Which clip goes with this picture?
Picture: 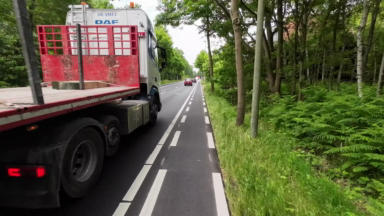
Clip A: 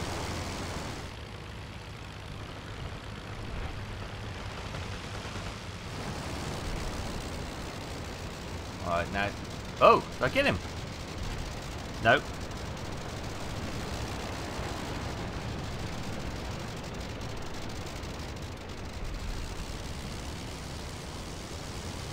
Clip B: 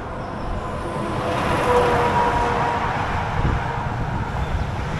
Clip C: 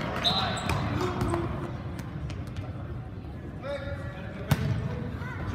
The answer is B